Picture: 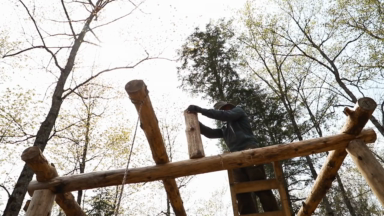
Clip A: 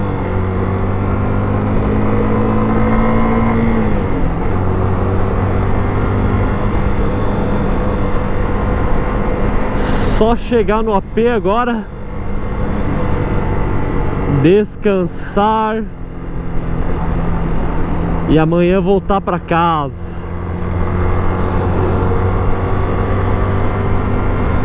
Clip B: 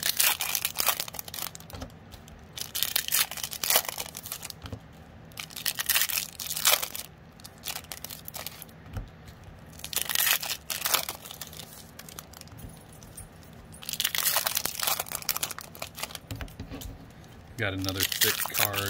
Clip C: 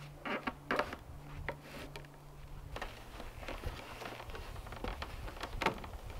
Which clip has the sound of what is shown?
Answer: C